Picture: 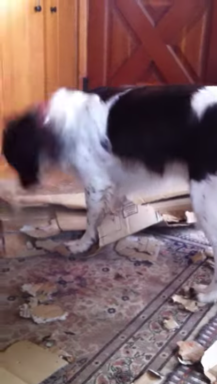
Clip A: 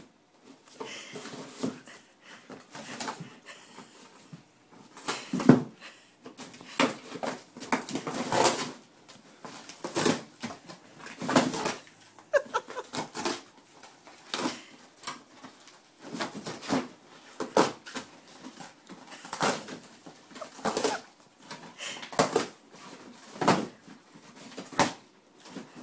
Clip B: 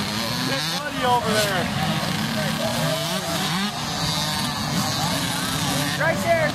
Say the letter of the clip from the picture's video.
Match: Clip A